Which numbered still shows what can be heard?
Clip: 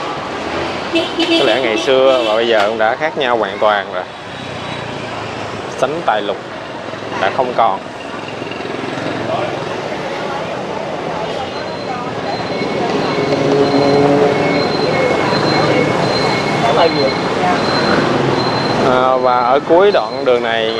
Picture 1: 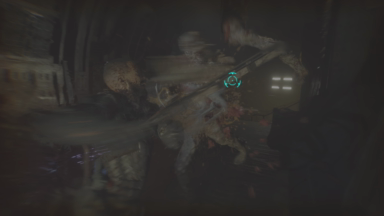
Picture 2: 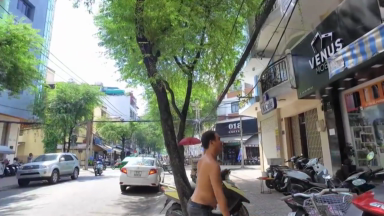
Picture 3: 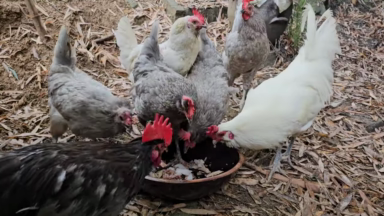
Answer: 2